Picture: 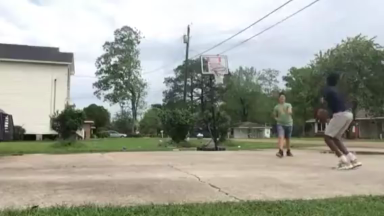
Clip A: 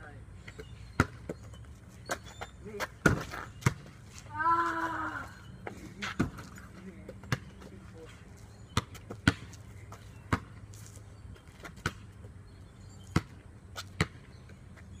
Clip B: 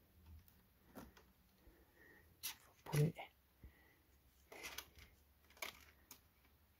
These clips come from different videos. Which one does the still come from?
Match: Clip A